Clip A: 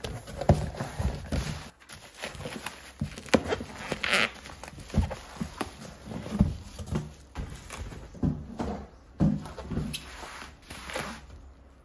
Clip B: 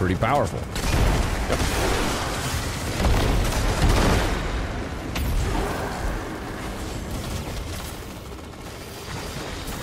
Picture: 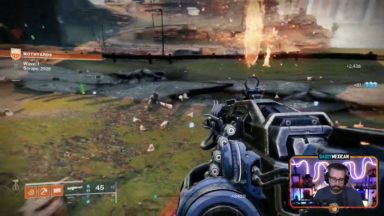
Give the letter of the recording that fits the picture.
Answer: B